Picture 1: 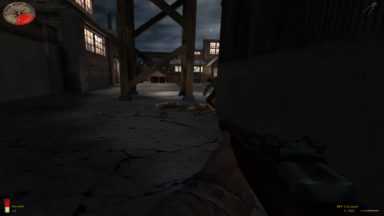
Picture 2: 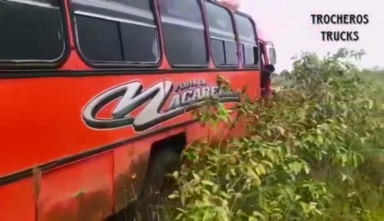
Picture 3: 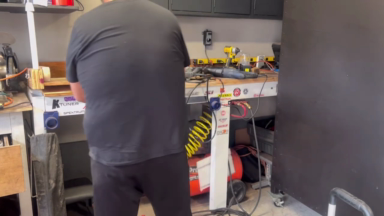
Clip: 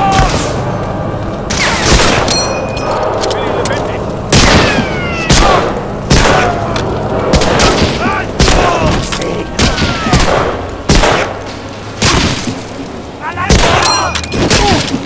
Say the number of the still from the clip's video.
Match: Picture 1